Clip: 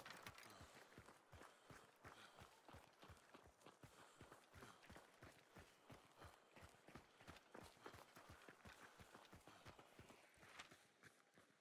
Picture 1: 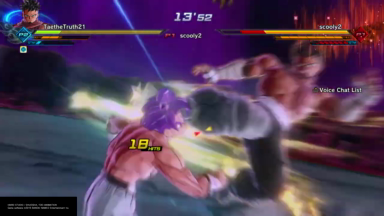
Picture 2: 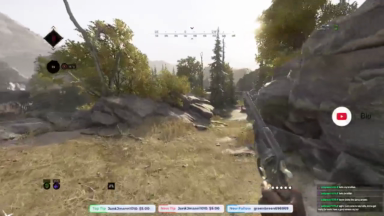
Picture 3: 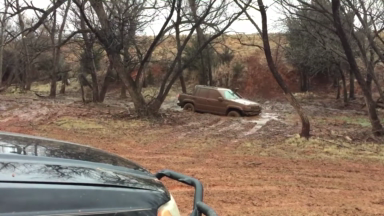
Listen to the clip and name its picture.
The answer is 2